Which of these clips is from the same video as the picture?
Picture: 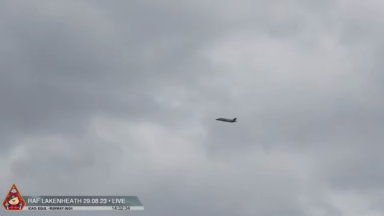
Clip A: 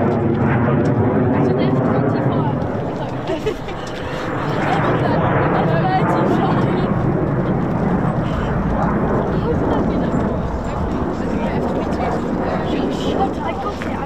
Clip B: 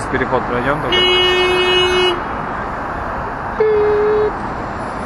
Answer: A